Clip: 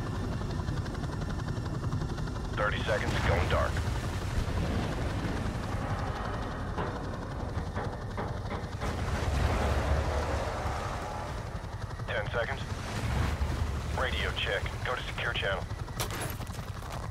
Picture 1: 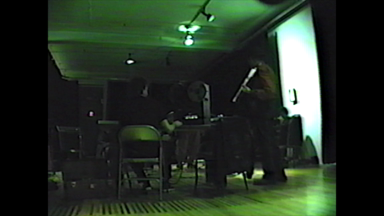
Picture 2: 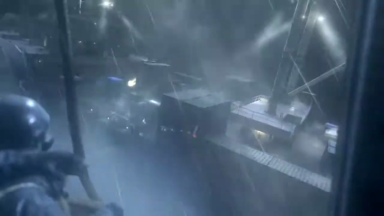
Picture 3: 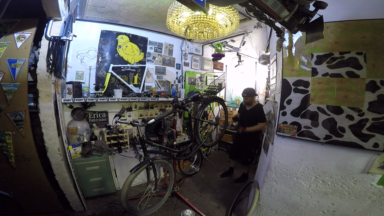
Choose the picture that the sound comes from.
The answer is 2